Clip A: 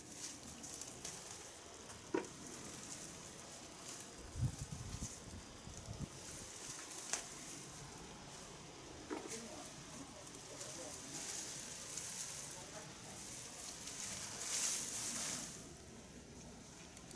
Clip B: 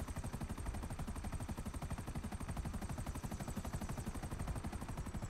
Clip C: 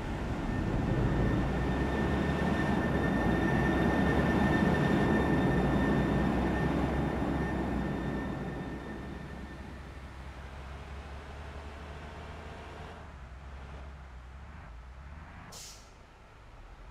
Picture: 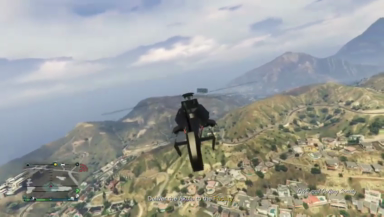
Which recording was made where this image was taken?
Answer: B